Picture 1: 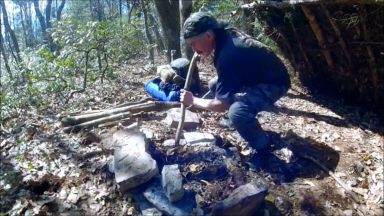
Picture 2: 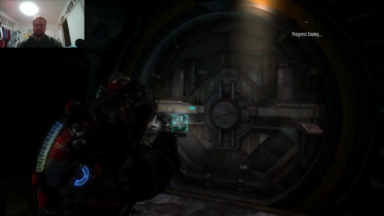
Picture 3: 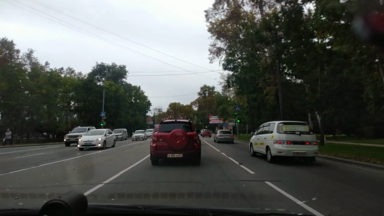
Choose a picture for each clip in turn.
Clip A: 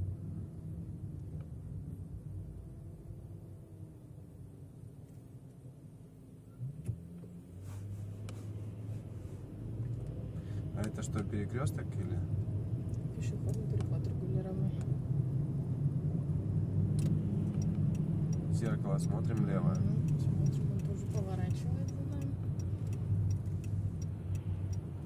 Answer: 3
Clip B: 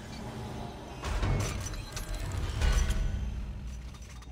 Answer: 2